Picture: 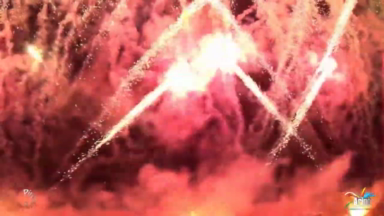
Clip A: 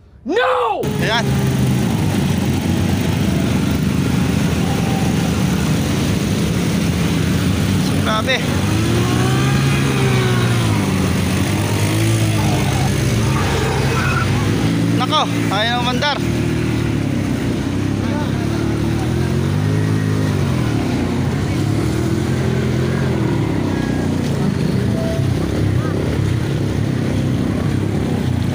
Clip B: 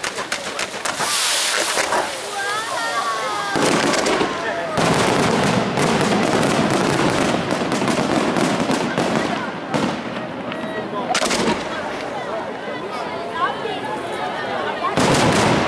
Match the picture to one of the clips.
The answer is B